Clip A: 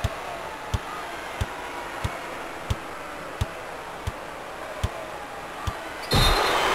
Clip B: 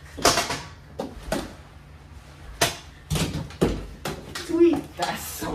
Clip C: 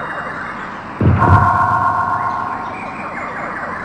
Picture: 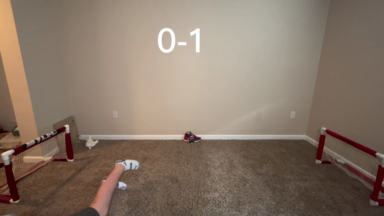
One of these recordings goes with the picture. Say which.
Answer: B